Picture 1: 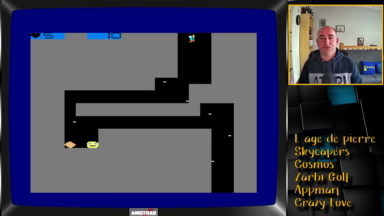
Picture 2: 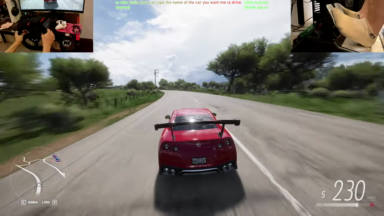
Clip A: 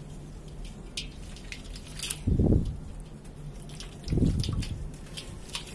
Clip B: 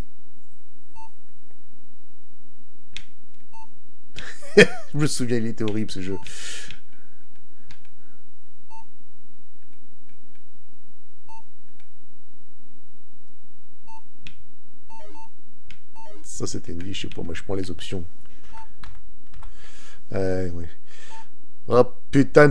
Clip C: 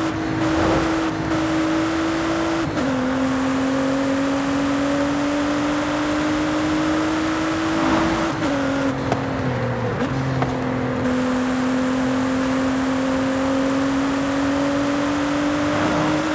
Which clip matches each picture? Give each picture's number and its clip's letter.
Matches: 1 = B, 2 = C